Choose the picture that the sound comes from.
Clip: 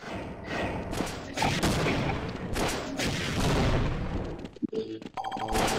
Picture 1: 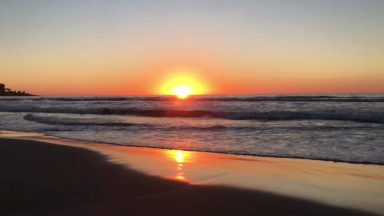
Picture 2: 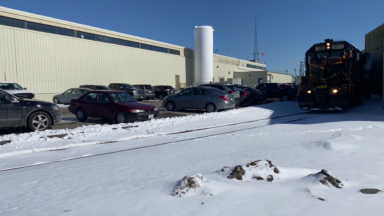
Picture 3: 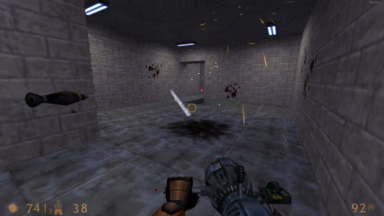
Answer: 3